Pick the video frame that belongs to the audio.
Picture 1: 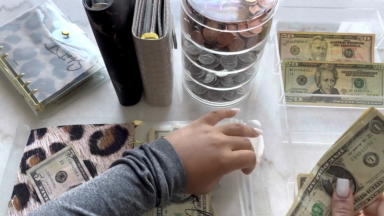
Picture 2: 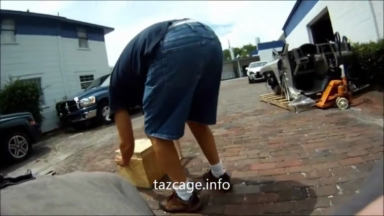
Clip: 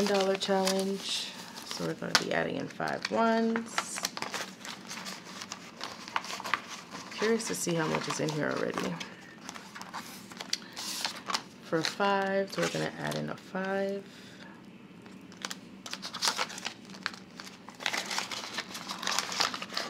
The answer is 1